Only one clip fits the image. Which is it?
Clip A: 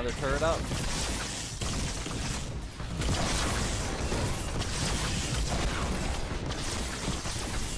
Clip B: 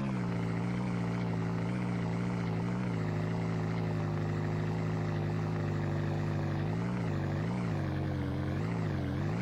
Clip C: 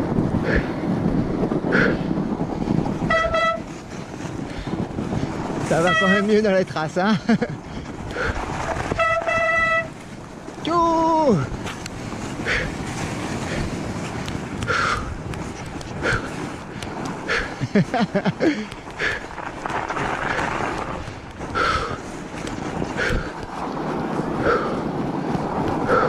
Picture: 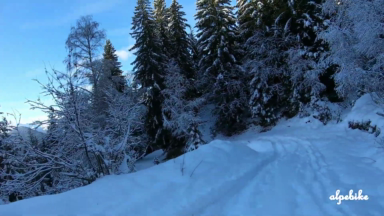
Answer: C